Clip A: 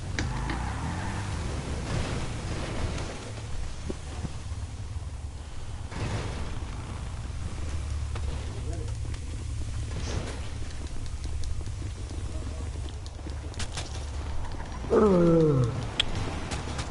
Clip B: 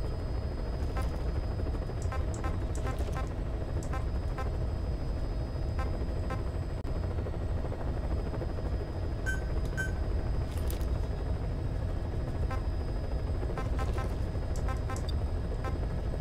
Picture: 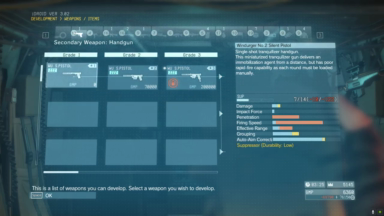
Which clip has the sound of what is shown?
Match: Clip B